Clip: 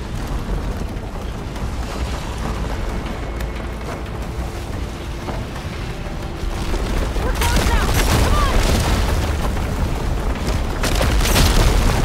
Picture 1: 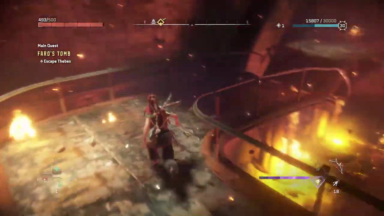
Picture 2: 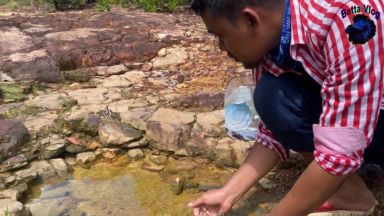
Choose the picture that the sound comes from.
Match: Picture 1